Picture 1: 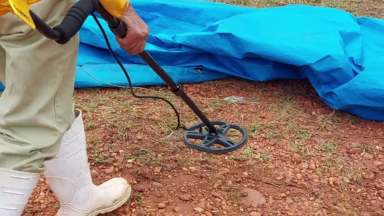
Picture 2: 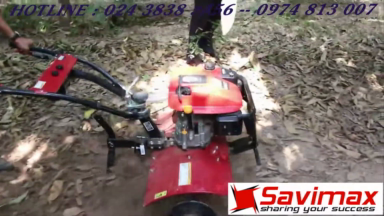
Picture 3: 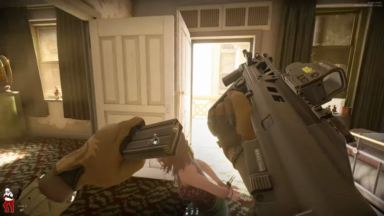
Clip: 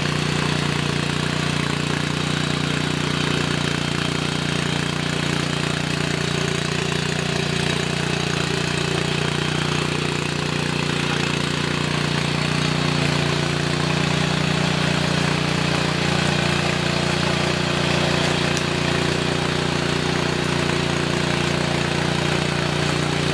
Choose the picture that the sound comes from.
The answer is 2